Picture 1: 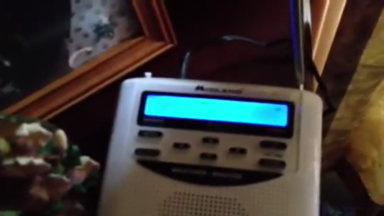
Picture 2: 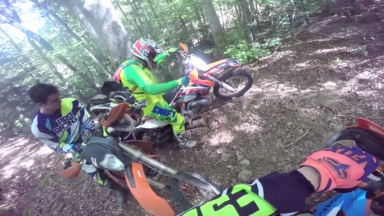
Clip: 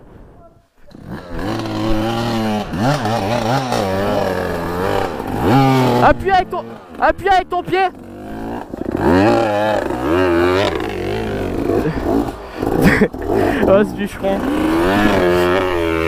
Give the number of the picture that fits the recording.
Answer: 2